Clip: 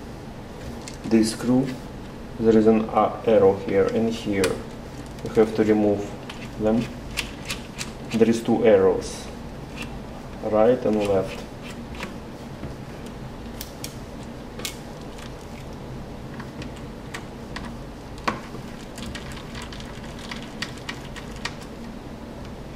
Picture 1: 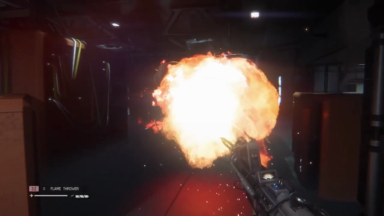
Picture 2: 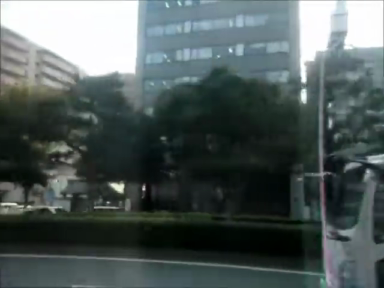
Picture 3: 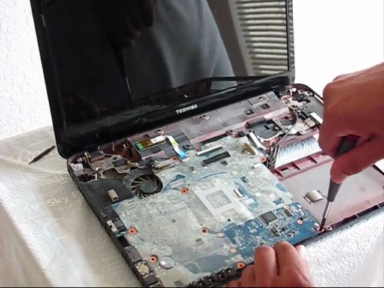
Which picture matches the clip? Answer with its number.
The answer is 3